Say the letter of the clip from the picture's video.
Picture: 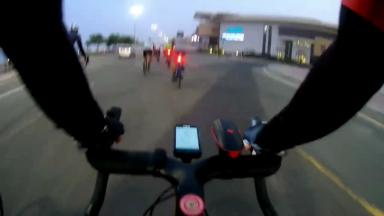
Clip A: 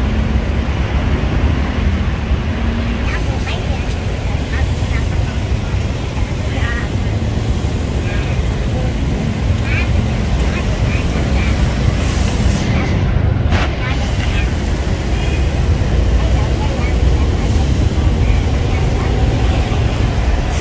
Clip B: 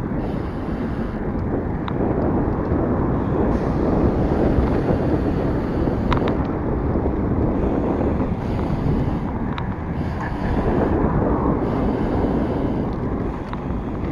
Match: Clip B